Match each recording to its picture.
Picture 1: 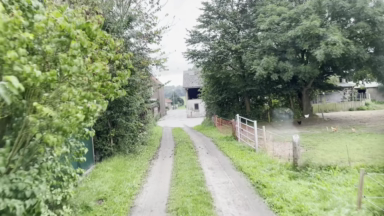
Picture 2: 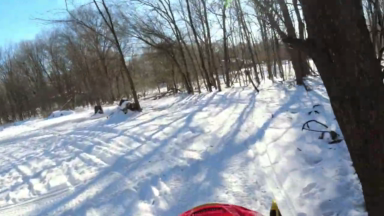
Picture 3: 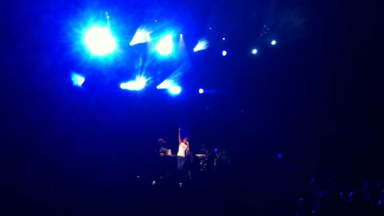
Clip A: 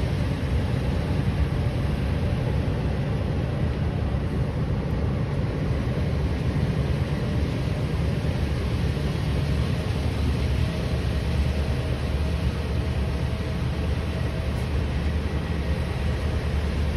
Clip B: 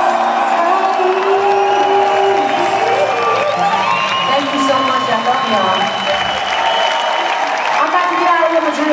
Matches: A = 1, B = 3